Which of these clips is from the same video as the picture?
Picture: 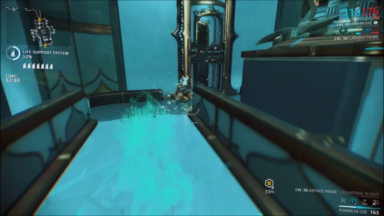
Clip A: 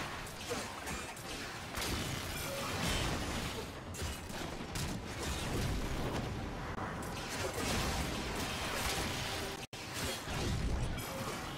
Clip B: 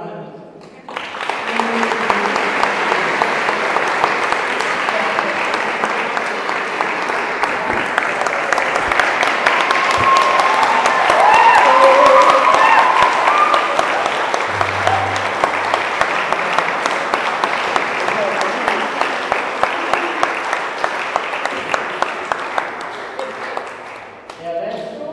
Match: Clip A